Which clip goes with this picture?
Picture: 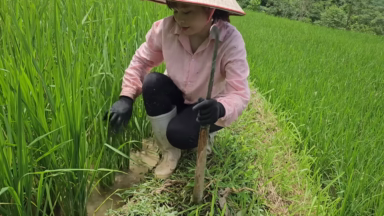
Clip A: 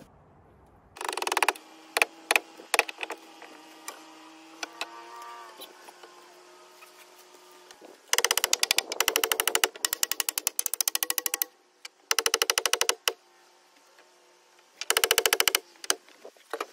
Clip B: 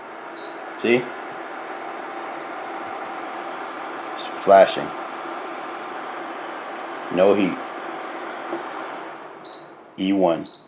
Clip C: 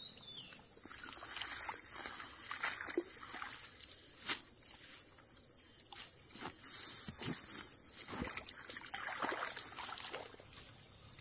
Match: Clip C